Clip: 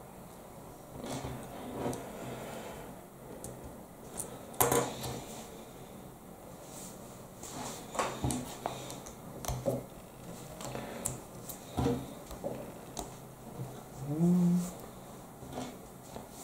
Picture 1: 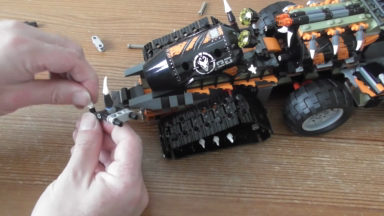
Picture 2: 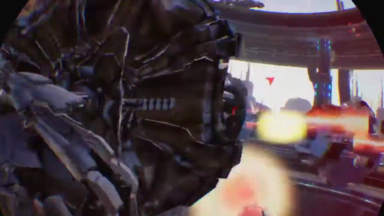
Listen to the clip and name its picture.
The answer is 1